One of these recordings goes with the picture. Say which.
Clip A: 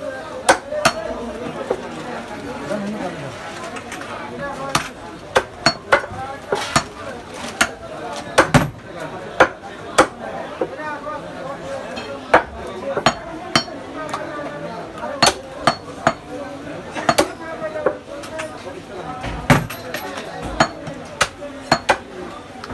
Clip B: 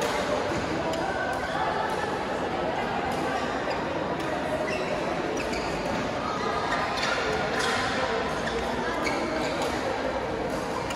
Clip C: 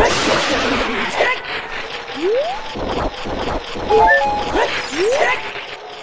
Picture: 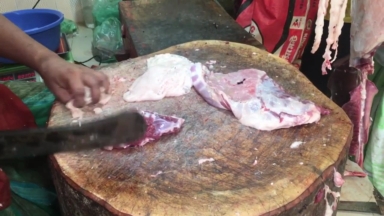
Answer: A